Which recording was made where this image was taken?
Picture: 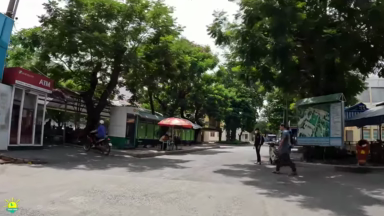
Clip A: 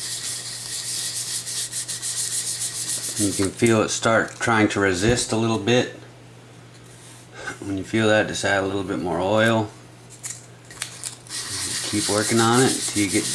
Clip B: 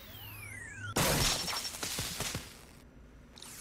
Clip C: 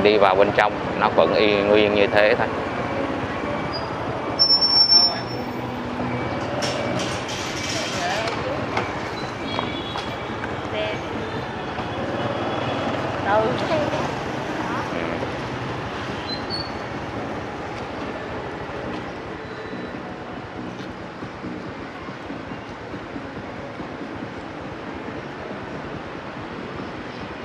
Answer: C